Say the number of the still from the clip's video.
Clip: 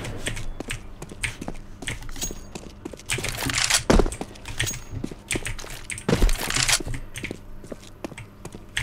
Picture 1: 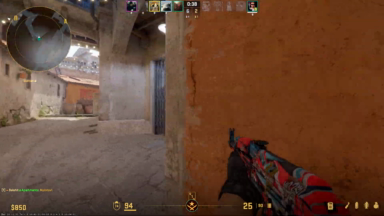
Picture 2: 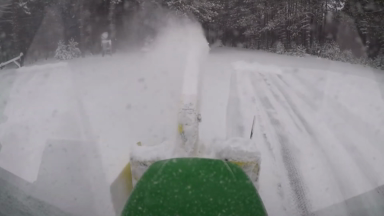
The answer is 1